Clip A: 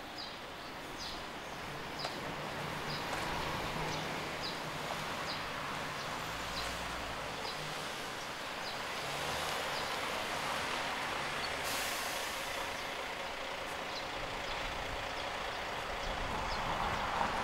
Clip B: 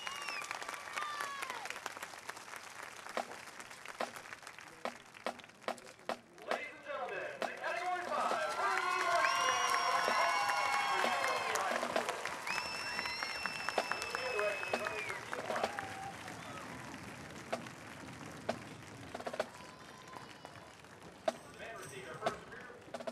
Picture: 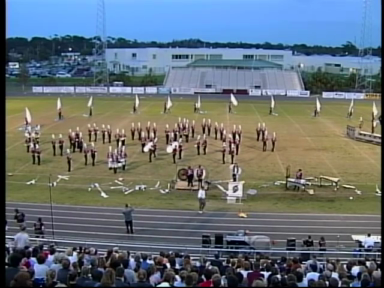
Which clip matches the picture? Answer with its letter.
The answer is B